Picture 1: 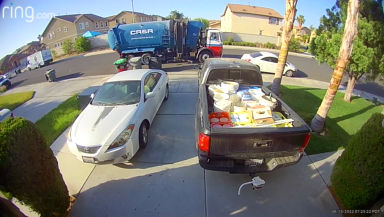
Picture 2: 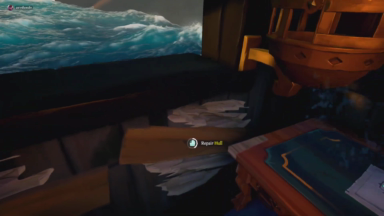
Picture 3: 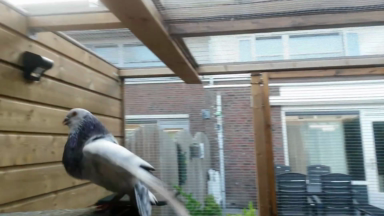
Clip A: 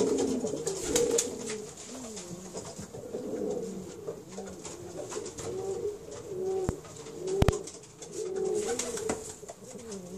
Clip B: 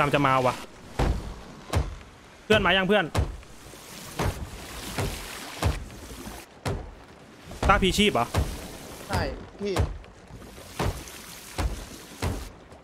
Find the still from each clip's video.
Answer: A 3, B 2